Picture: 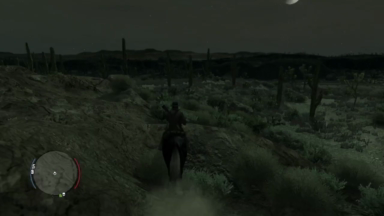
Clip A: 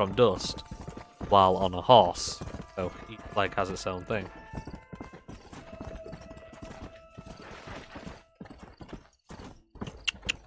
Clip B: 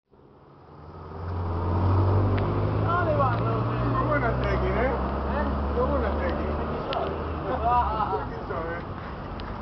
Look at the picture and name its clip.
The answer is A